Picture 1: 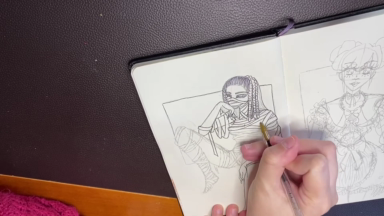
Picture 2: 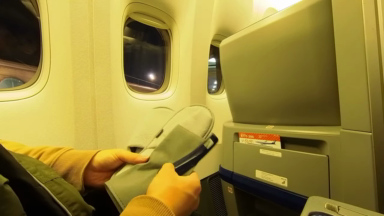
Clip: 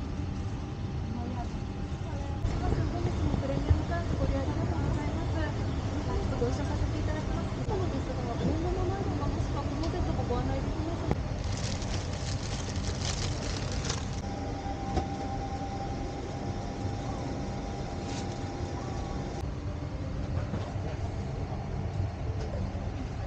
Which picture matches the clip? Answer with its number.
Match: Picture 2